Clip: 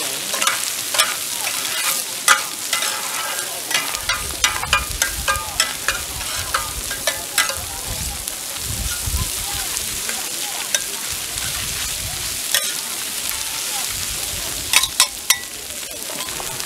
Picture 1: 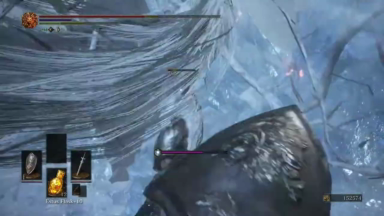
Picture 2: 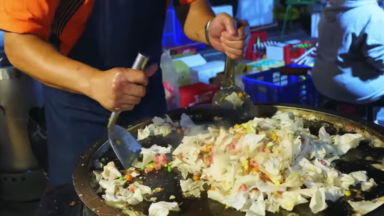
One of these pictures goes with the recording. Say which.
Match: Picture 2